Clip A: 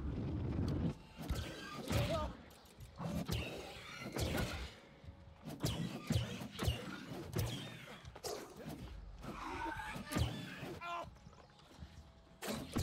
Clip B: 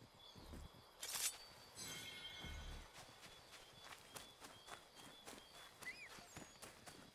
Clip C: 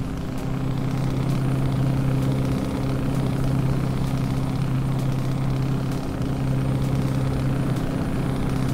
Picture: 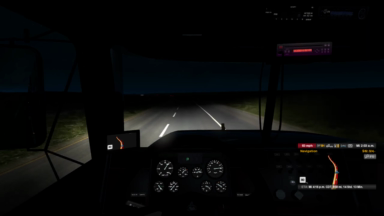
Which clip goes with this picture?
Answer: C